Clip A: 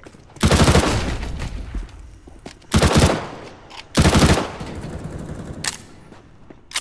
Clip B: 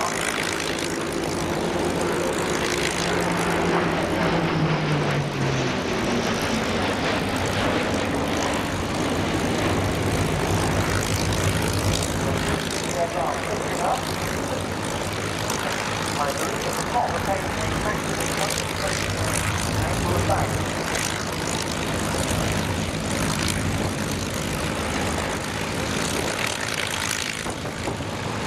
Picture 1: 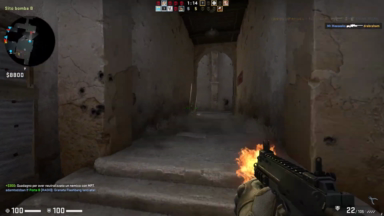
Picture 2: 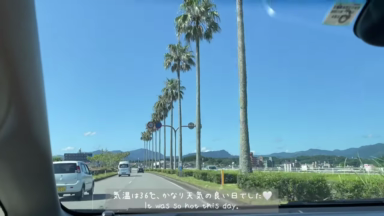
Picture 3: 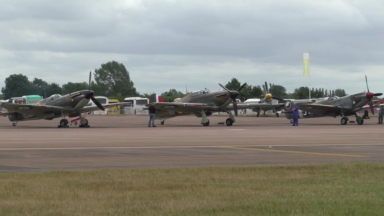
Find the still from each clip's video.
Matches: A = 1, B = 3